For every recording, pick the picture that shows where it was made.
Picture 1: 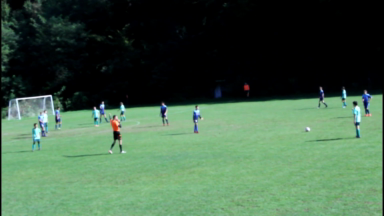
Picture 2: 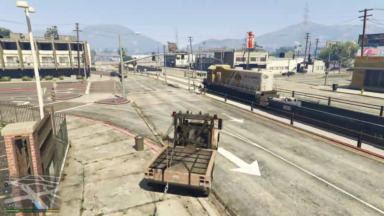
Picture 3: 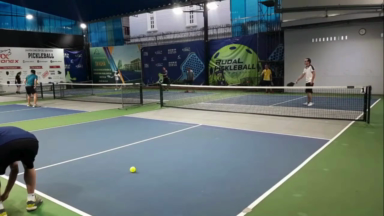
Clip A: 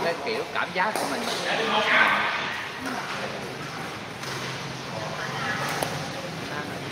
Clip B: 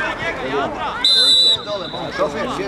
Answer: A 3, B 1